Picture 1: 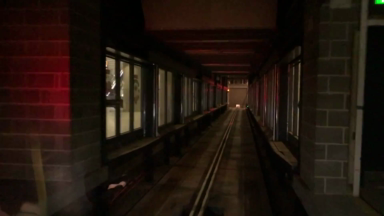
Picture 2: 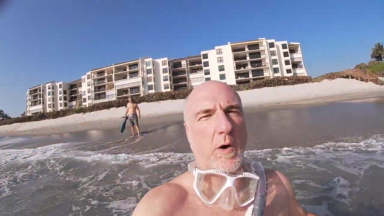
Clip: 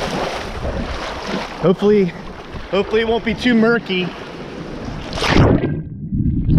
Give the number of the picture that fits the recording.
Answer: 2